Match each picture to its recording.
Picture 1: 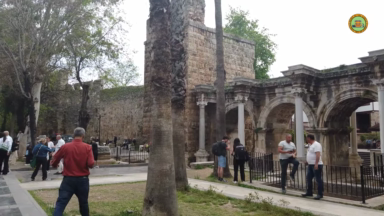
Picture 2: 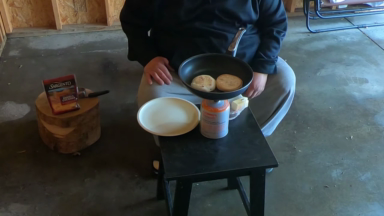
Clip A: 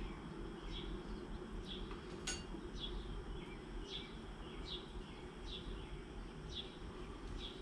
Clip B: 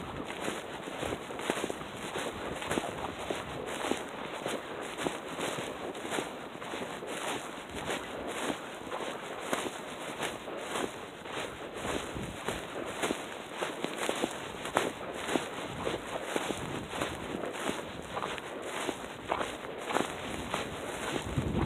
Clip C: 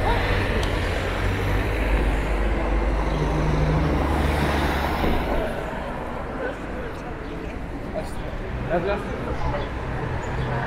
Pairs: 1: C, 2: A